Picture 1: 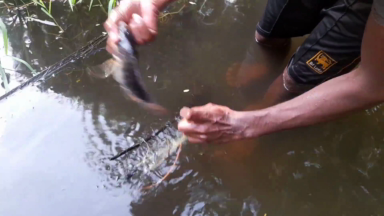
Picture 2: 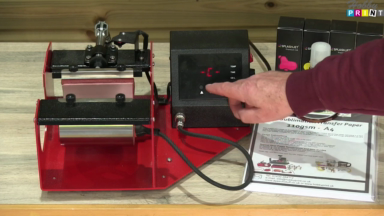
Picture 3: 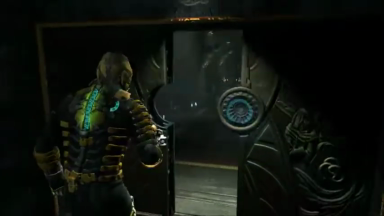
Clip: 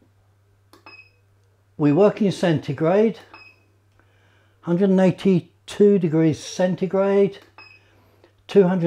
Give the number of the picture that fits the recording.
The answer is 2